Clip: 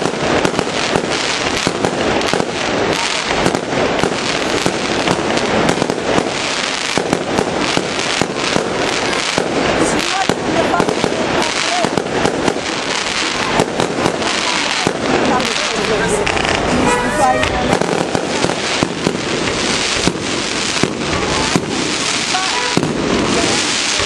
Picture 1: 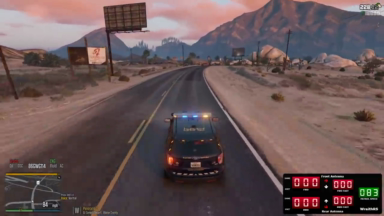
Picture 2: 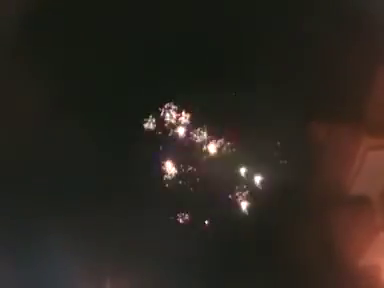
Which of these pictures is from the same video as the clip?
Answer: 2